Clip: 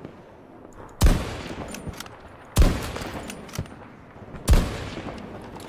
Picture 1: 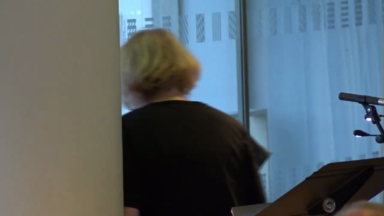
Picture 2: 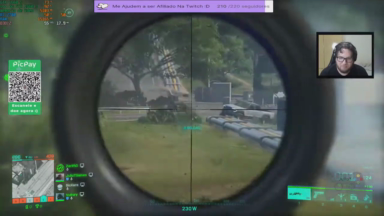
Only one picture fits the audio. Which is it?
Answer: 2